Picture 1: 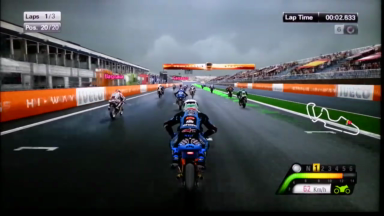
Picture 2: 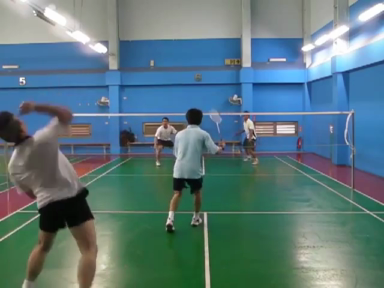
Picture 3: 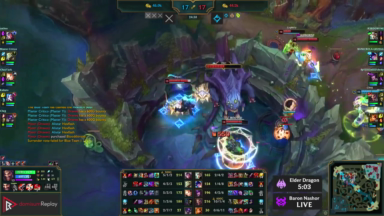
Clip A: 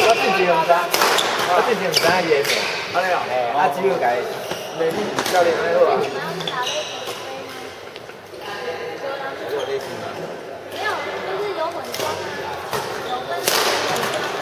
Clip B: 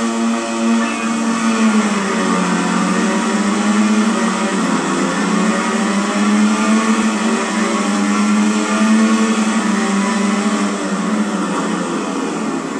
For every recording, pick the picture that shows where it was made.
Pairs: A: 2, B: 1